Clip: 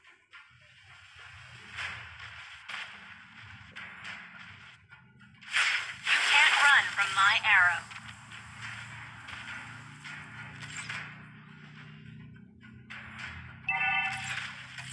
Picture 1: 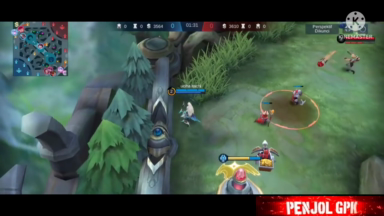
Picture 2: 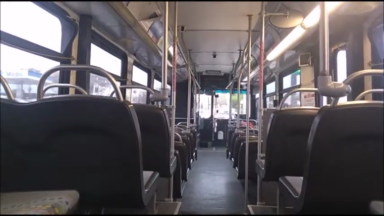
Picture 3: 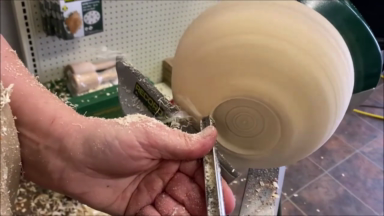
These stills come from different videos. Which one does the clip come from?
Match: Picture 1